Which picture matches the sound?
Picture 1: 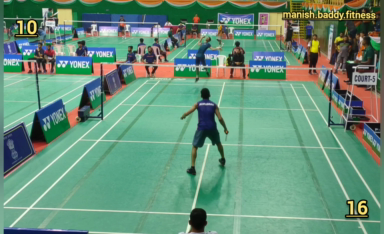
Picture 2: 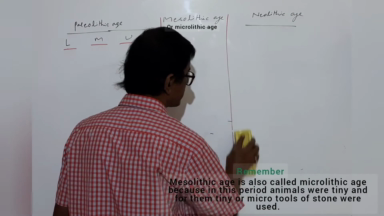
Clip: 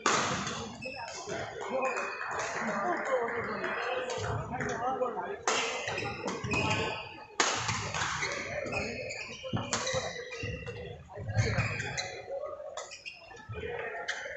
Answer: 1